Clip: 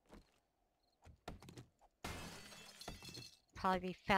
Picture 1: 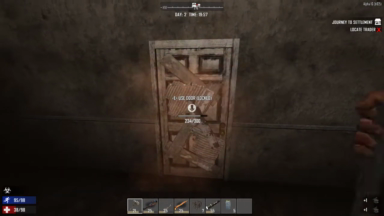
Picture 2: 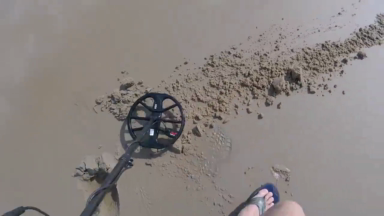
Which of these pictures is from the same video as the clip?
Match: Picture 1